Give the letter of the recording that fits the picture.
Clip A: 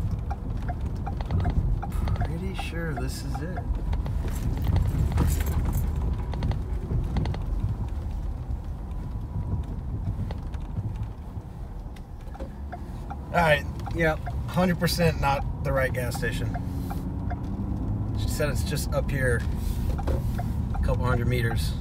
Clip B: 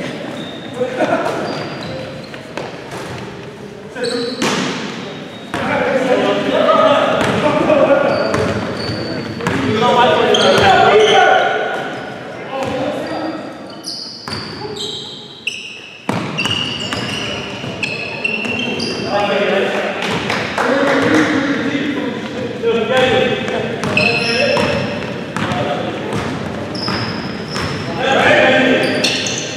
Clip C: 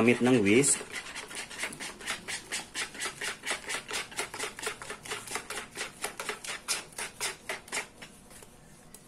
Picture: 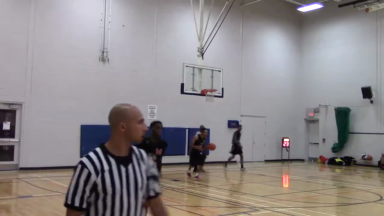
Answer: B